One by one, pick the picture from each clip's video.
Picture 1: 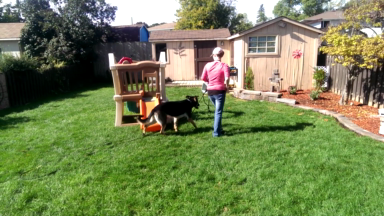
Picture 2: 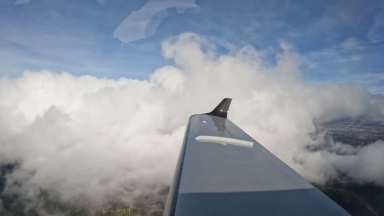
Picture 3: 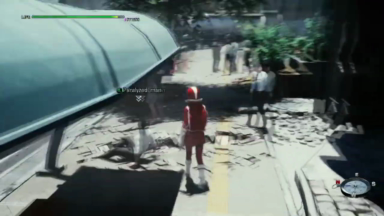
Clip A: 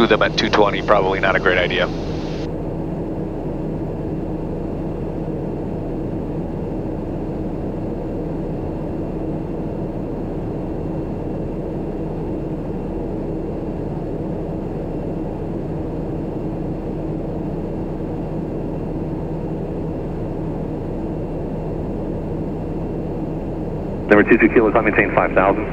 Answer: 2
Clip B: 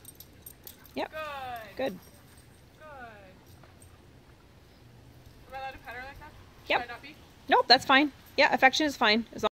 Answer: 1